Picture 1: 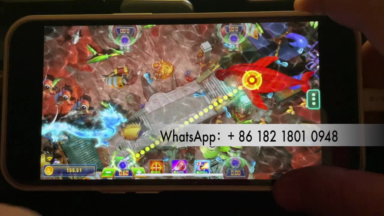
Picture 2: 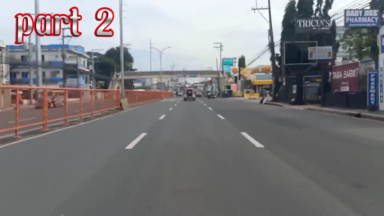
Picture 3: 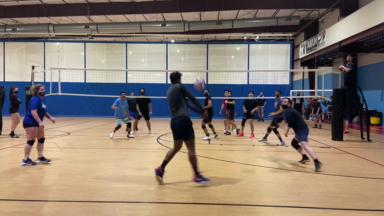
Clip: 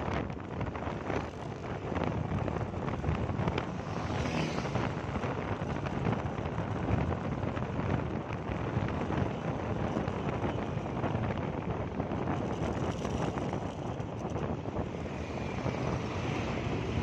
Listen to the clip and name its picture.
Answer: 2